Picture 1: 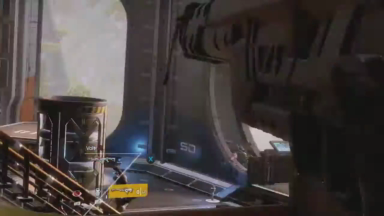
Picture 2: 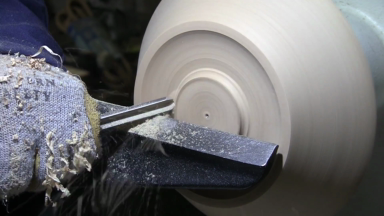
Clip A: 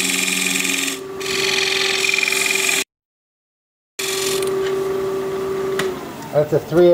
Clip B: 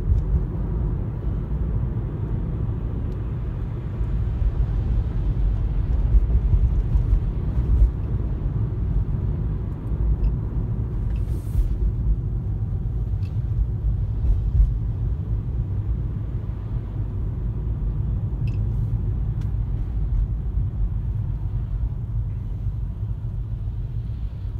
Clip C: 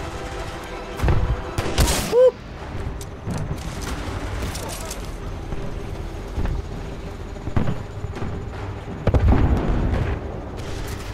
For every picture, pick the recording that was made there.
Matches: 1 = C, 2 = A